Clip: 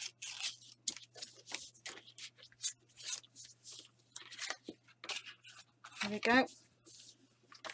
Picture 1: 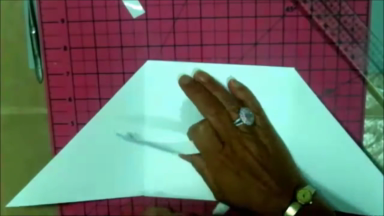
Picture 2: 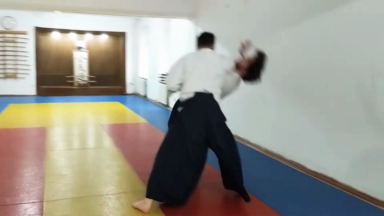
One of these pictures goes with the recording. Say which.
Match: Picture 1